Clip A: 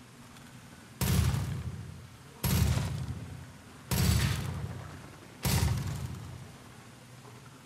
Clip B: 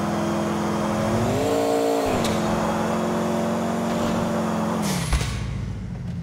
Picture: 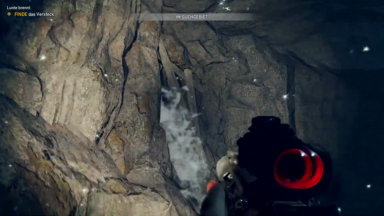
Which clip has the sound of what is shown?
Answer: A